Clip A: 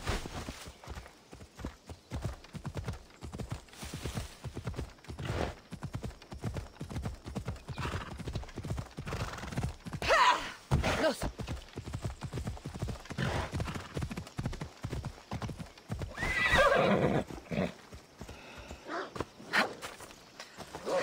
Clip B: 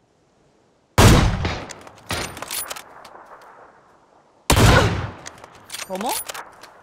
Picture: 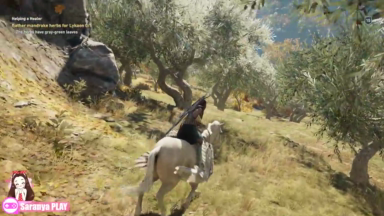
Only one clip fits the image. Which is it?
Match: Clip A